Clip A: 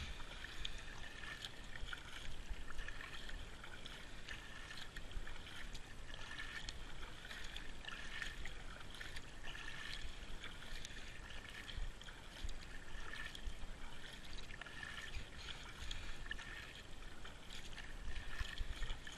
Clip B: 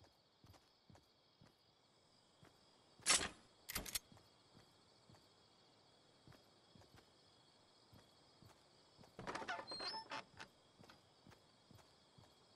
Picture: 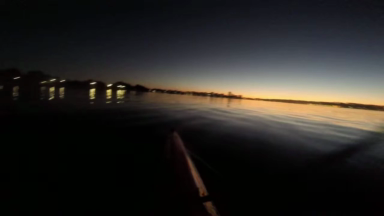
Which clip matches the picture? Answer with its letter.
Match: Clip A